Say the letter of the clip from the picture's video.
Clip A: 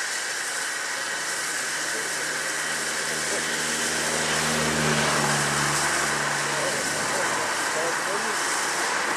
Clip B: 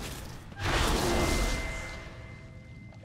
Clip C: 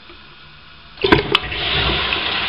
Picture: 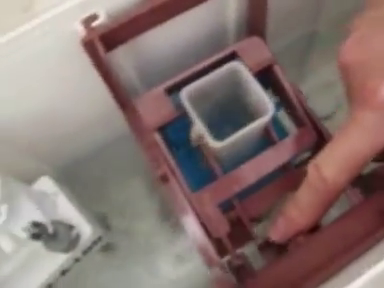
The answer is C